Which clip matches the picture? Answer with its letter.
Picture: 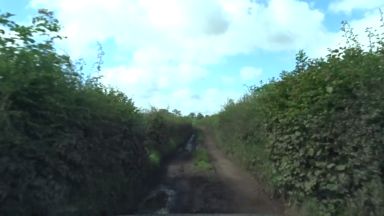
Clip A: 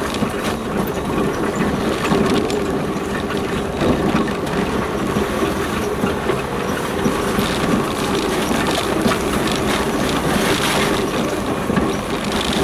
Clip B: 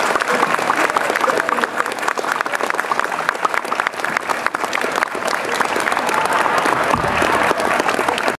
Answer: A